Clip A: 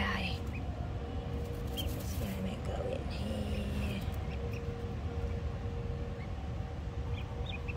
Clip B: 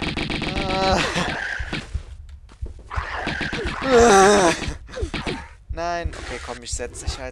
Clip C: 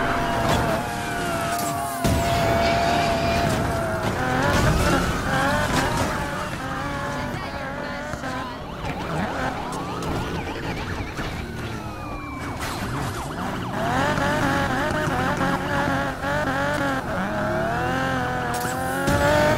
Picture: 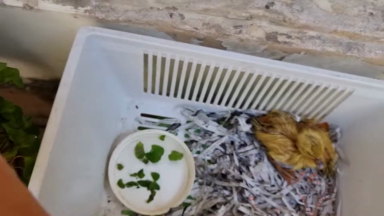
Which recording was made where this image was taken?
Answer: A